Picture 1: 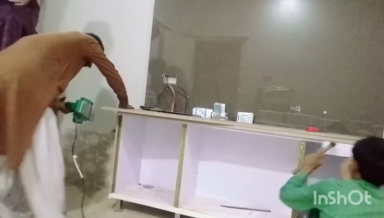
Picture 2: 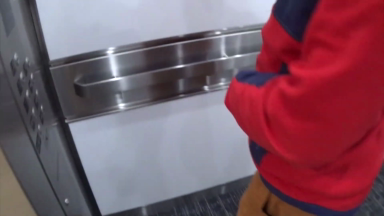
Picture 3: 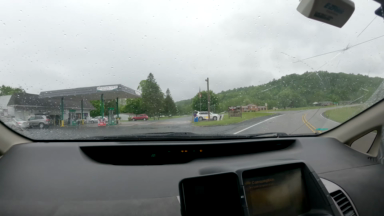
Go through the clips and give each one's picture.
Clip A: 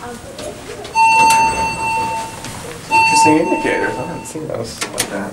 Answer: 2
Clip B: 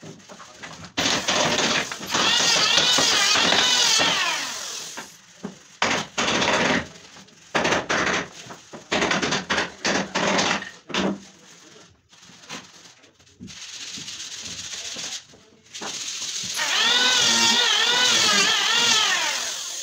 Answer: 1